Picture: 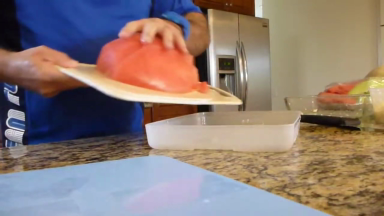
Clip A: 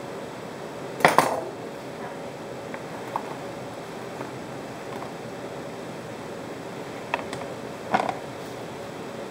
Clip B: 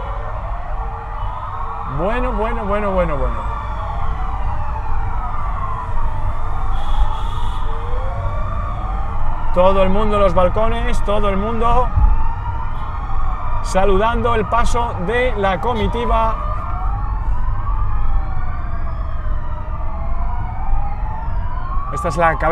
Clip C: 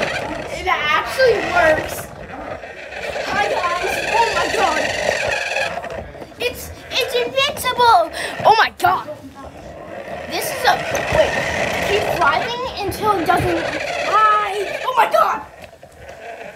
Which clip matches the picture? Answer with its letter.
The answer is A